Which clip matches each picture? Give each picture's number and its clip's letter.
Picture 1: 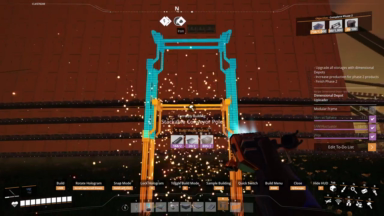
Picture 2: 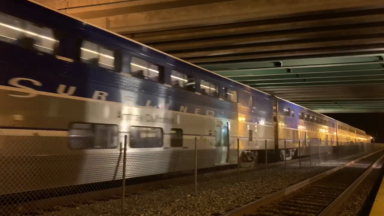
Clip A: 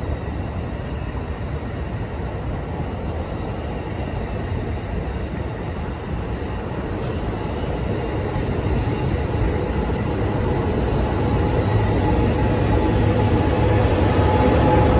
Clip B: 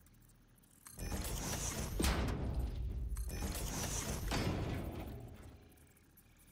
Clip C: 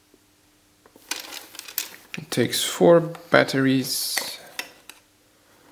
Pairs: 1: B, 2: A